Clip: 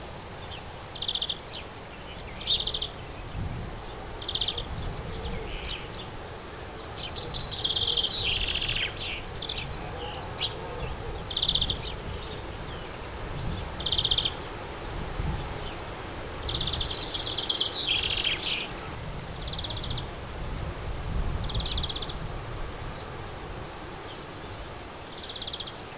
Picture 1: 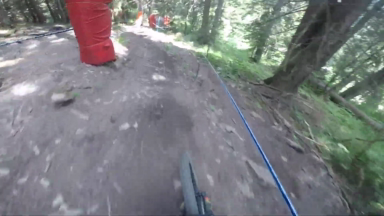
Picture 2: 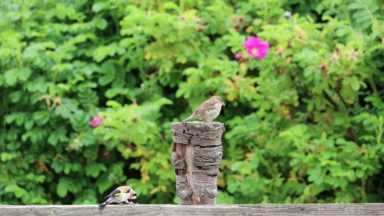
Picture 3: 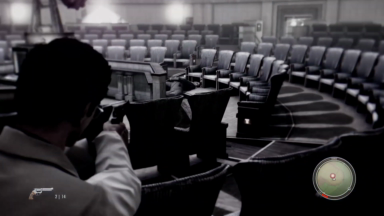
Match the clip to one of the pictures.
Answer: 2